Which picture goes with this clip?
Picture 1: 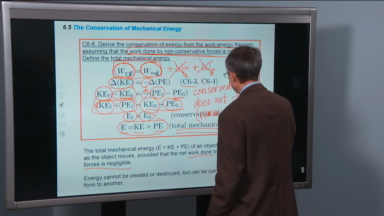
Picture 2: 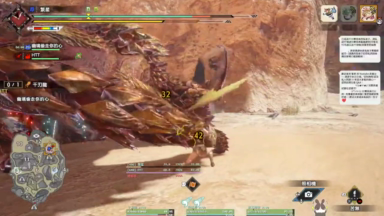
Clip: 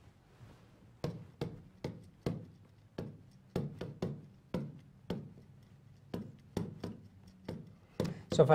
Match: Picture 1